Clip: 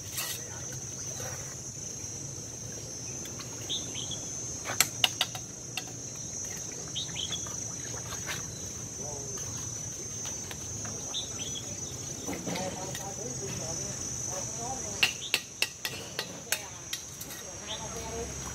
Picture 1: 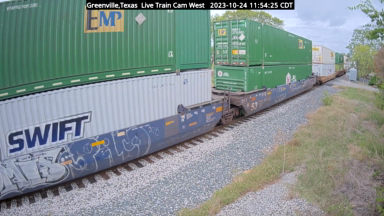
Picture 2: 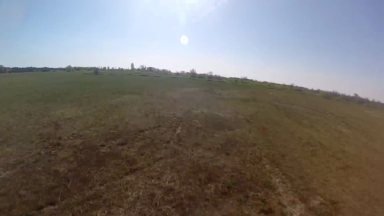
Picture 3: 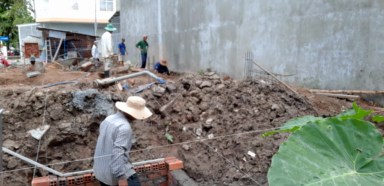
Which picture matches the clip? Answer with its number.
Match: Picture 3